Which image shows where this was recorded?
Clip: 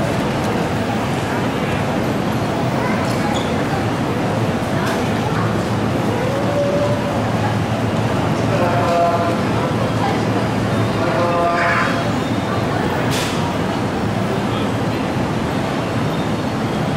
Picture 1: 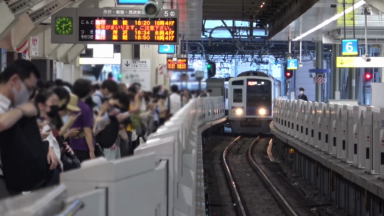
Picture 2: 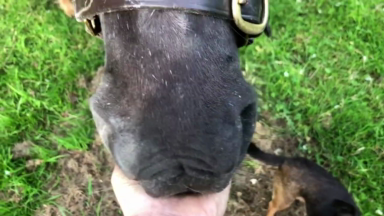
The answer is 1